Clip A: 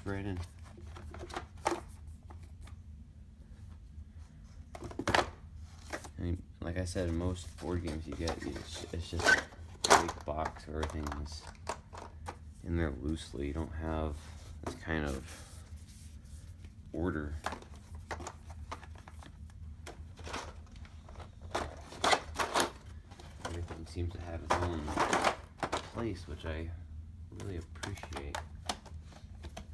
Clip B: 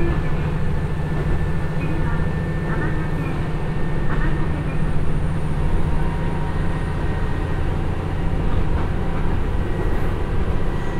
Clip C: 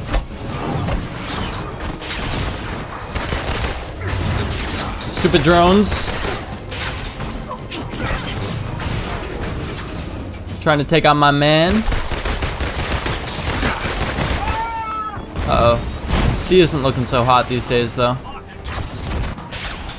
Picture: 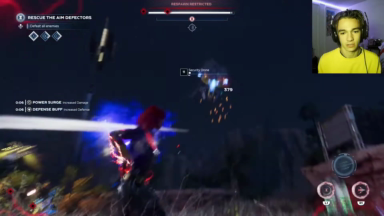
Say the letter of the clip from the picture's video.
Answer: C